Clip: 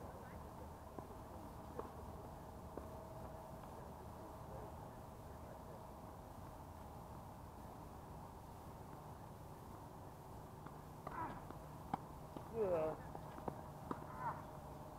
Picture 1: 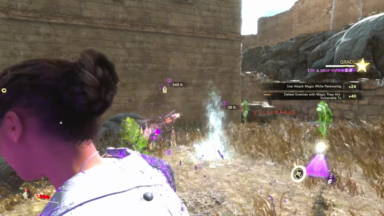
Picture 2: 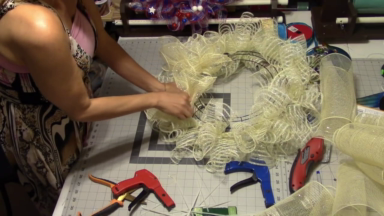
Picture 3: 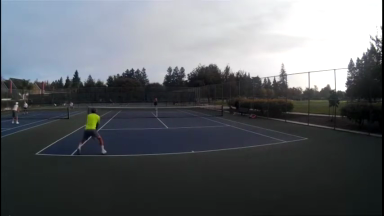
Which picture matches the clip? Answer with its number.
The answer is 3